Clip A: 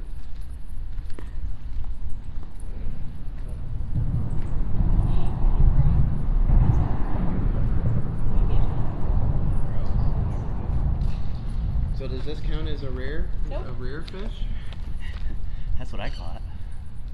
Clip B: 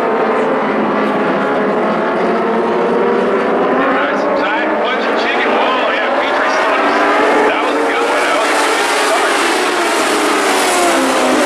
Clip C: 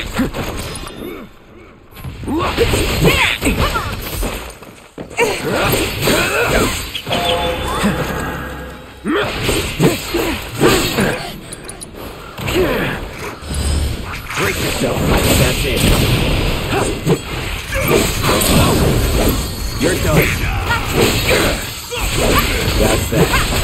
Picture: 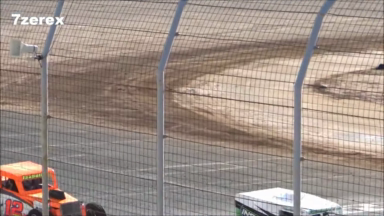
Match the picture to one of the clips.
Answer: B